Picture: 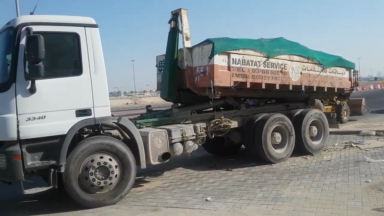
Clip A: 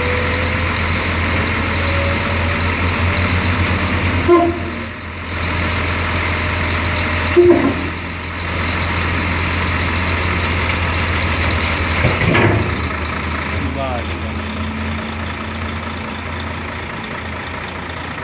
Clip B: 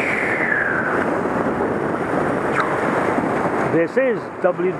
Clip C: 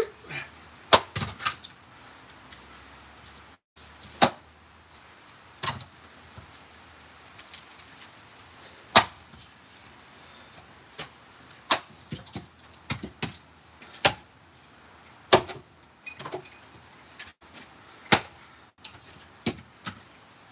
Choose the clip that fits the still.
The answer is A